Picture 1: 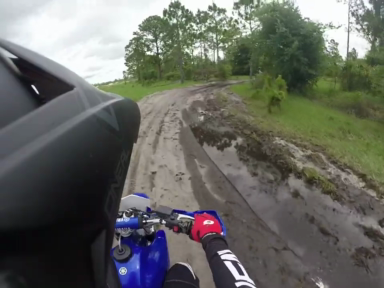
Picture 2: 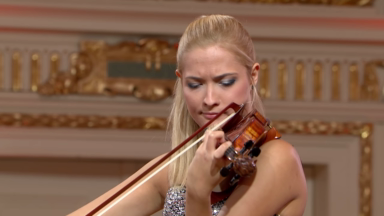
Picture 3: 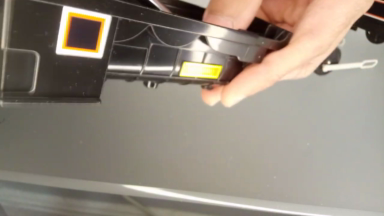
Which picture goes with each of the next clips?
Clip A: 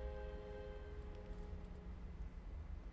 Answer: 2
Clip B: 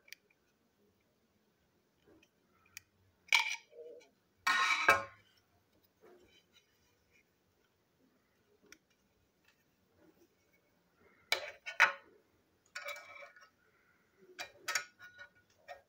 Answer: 3